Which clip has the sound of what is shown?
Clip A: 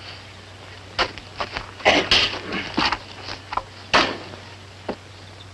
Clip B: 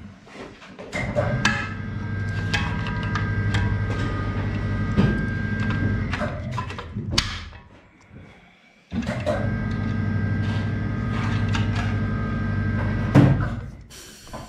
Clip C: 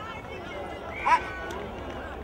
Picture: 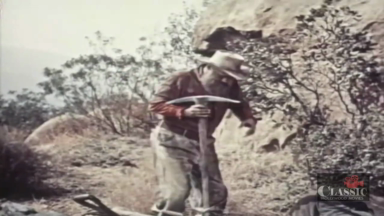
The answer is A